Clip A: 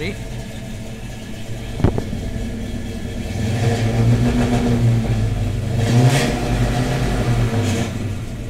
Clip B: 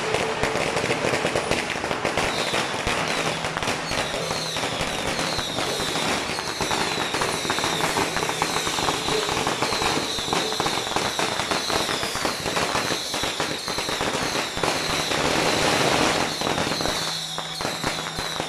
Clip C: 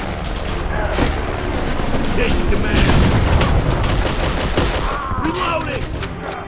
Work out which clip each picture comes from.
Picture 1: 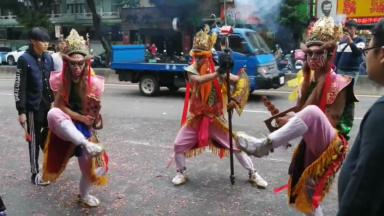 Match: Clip B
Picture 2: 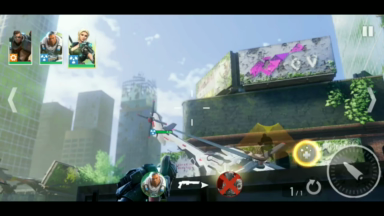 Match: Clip C